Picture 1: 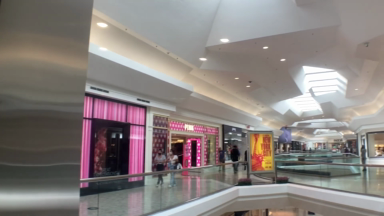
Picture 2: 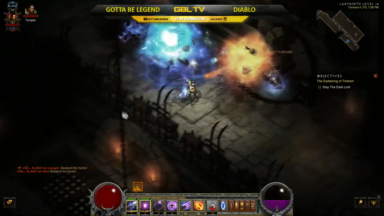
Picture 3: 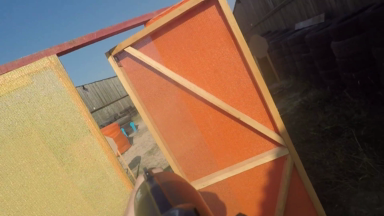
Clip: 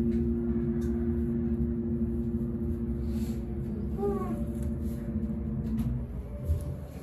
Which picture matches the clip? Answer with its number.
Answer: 1